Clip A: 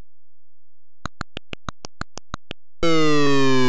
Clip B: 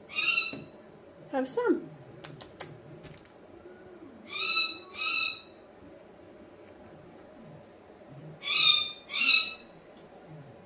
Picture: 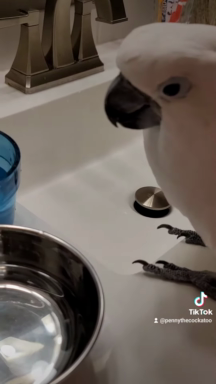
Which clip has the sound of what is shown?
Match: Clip B